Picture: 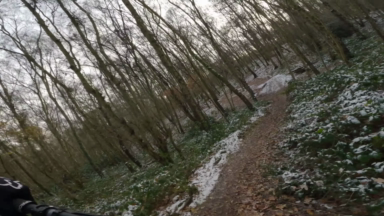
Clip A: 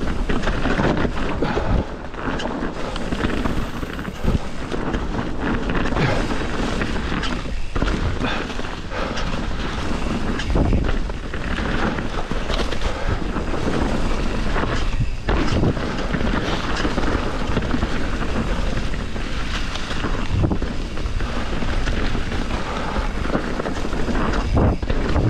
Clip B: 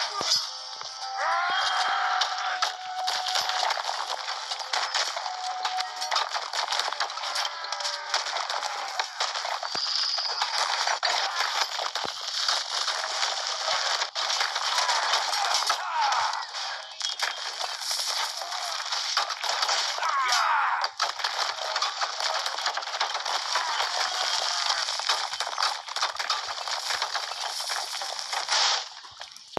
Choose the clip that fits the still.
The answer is A